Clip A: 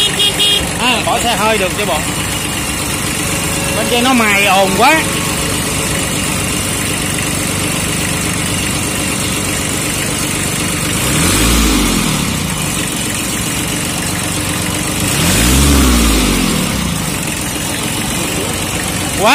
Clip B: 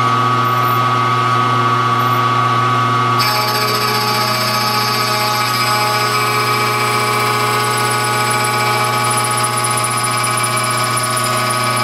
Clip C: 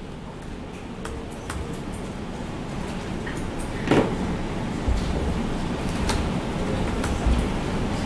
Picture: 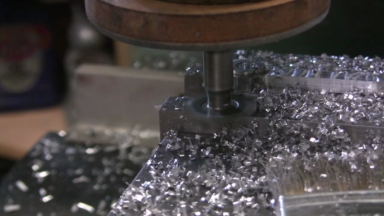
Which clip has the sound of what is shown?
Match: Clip B